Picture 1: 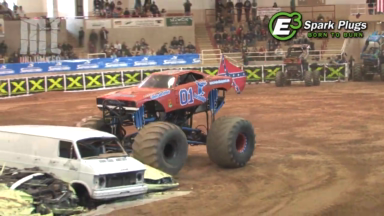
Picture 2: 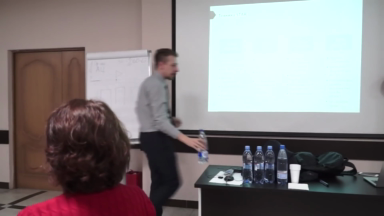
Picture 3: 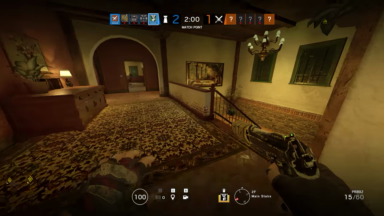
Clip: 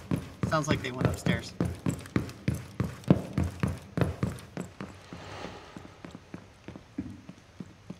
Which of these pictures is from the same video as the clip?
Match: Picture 3